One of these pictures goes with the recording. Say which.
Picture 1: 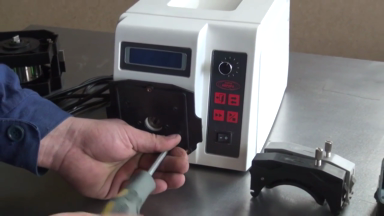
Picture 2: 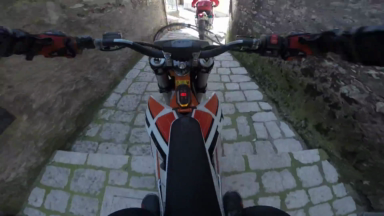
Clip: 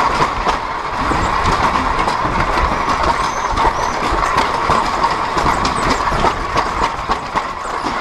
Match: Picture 2